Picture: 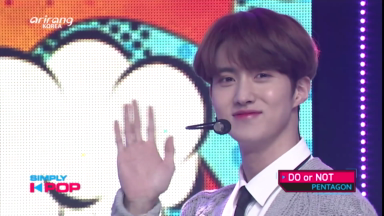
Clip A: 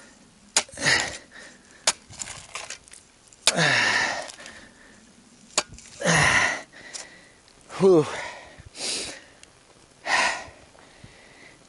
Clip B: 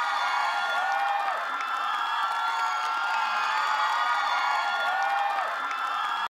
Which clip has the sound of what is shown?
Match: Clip B